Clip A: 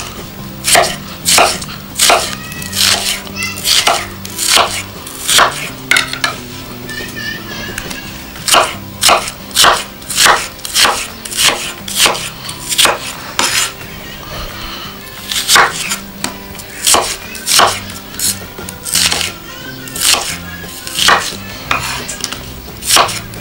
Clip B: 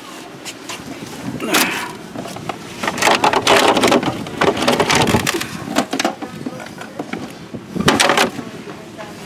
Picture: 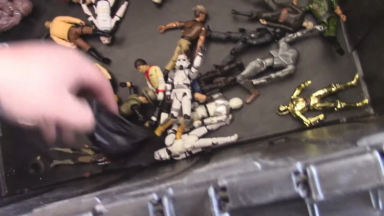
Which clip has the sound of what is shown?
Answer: B